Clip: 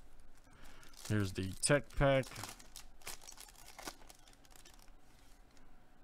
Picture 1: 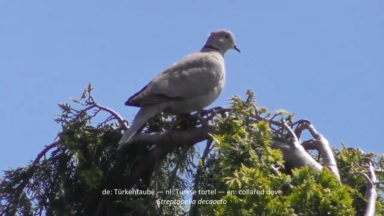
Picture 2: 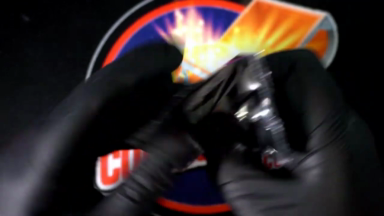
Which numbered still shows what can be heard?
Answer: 2